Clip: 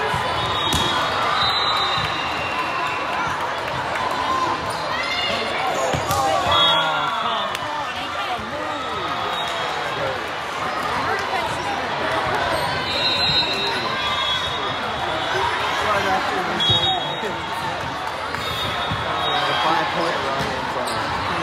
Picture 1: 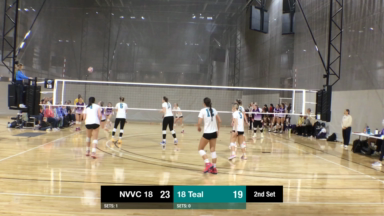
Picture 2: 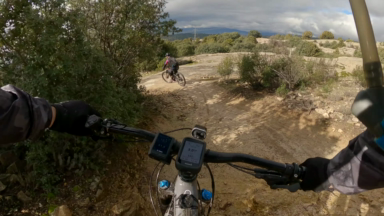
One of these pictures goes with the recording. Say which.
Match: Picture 1